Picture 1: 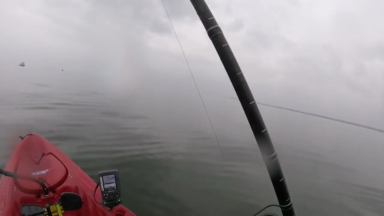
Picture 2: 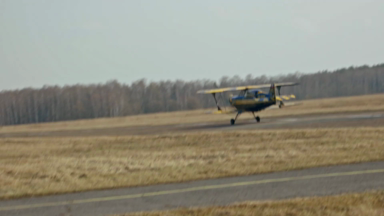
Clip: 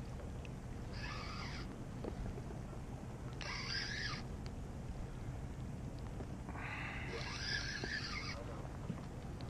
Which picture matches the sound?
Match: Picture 1